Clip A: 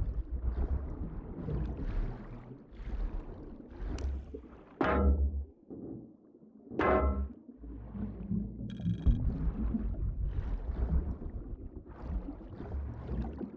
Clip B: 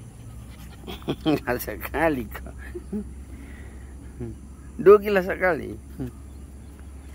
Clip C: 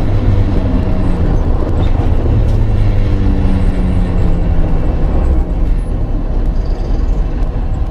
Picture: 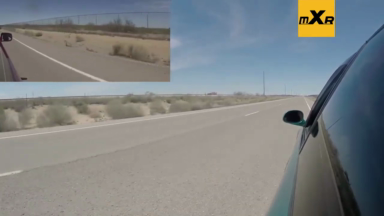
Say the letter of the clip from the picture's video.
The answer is C